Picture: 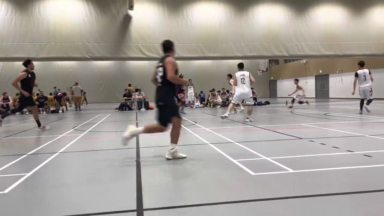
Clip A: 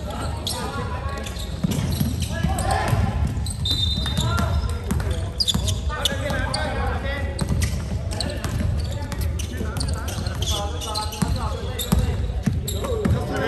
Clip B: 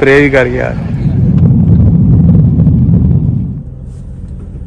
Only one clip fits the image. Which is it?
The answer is A